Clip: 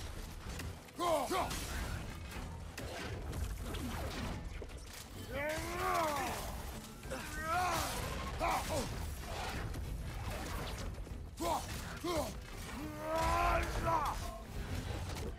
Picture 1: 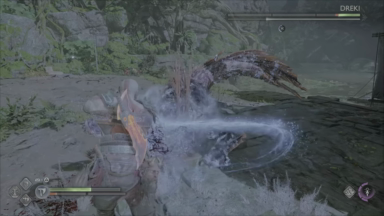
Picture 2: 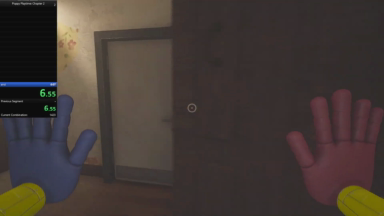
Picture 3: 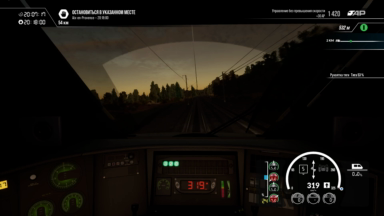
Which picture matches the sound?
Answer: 1